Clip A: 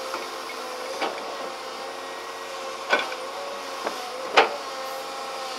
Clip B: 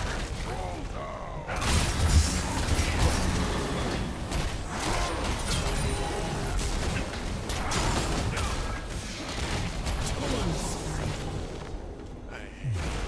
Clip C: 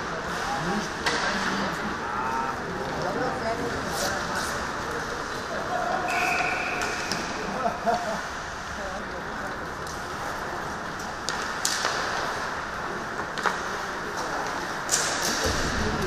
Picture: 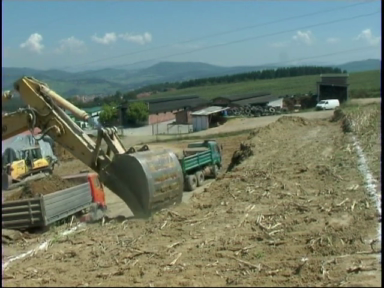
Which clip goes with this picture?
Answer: A